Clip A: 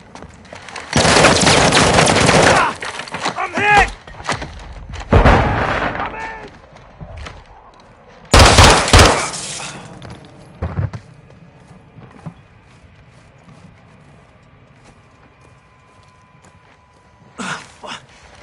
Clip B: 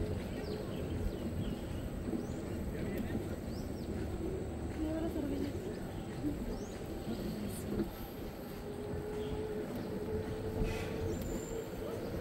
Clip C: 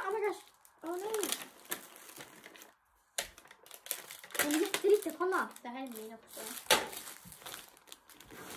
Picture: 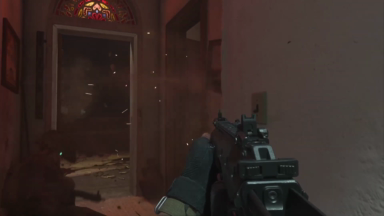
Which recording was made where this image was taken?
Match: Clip A